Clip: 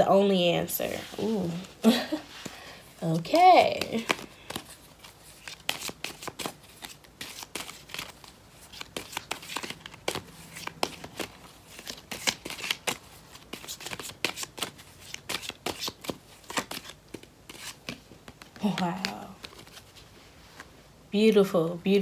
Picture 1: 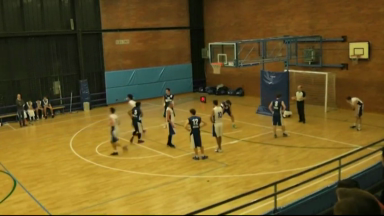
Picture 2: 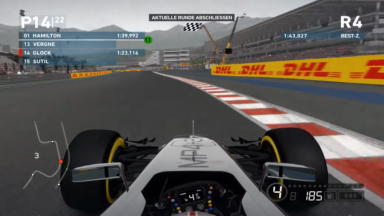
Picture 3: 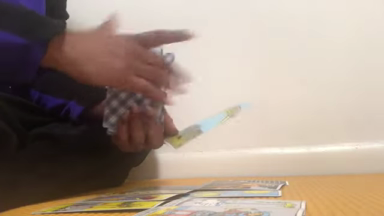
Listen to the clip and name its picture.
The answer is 3